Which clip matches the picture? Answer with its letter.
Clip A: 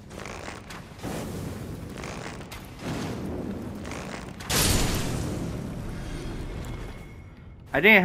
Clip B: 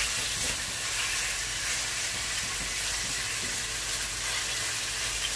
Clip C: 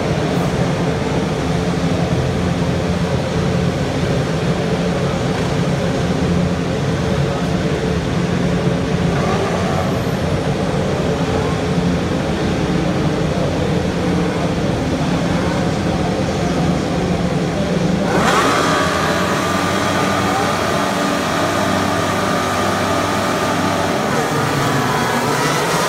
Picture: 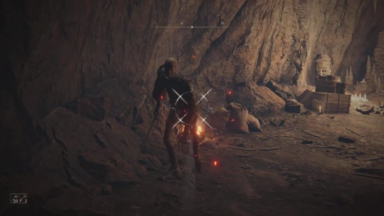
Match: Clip A